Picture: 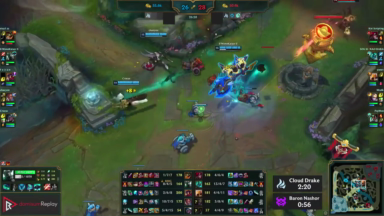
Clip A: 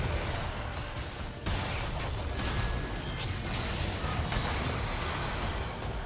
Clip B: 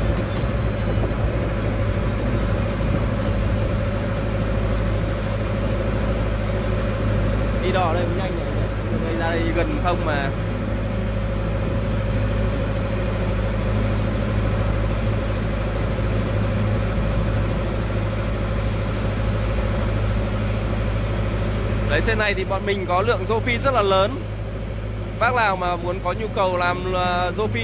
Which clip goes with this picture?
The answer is A